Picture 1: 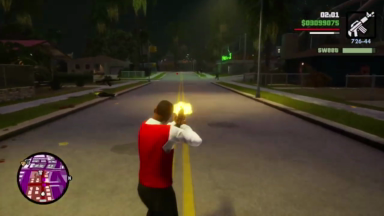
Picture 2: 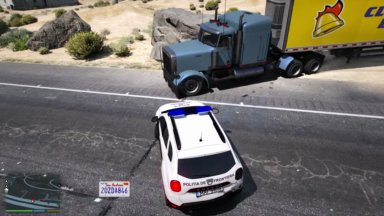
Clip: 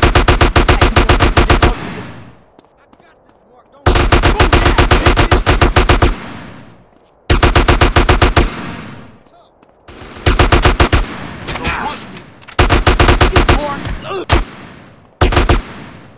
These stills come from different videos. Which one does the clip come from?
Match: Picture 1